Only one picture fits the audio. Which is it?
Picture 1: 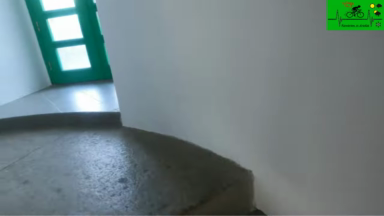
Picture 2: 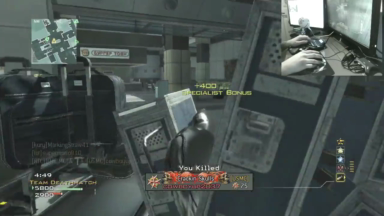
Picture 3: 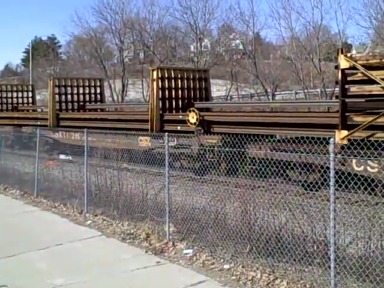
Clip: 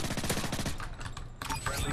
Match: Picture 2